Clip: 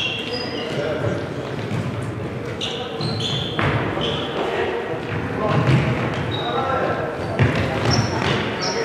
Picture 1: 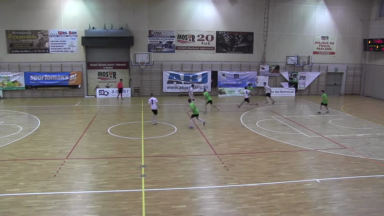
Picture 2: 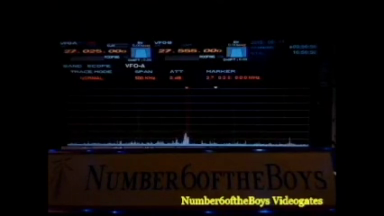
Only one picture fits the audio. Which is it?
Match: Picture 1